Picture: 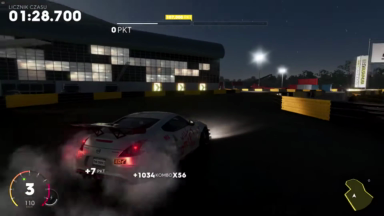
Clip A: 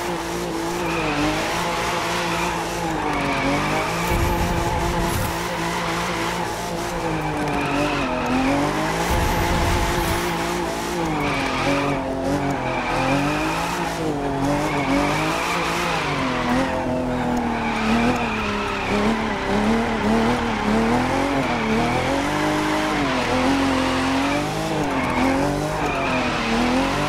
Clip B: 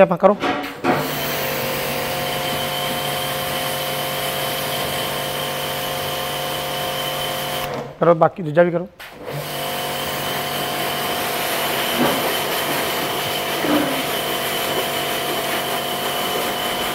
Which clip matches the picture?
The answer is A